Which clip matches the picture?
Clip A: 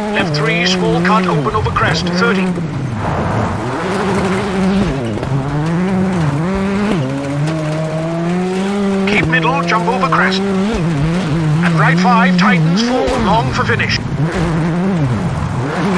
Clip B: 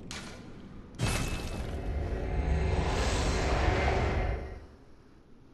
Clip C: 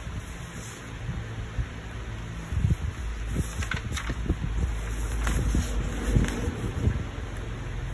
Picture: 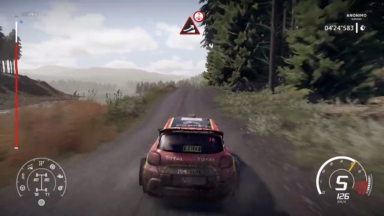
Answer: A